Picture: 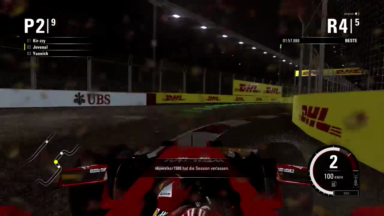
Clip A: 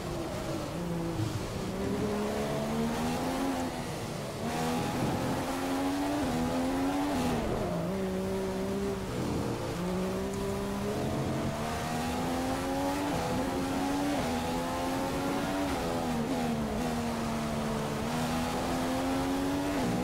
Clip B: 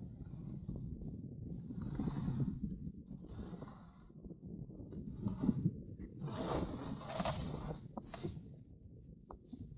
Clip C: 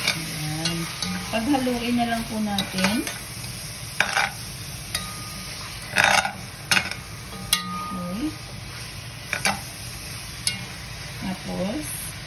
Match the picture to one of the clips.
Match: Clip A